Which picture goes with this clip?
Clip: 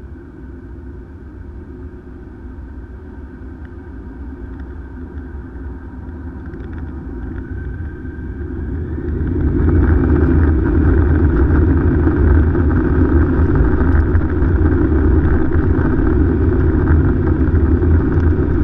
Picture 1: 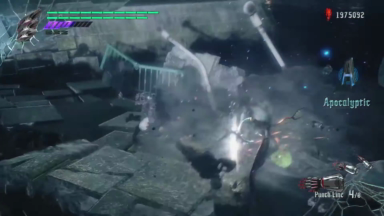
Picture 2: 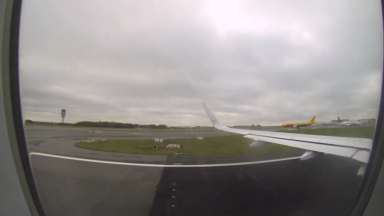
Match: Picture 2